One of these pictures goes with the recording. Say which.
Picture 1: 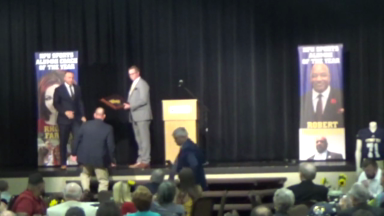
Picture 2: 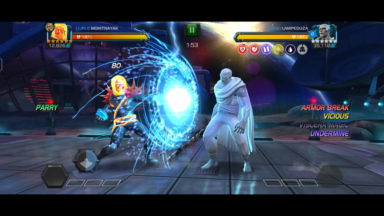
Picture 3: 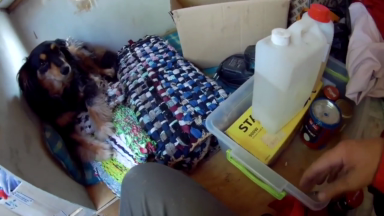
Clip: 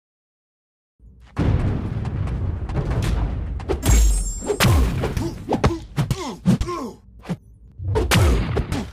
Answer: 2